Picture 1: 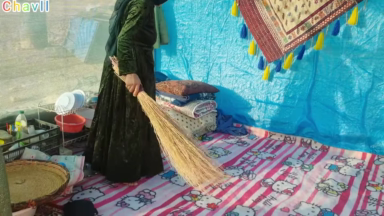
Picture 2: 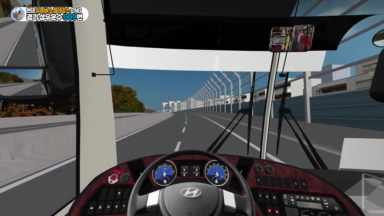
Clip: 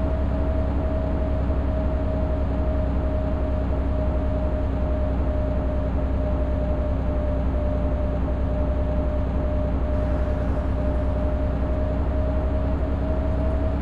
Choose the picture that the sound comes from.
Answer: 2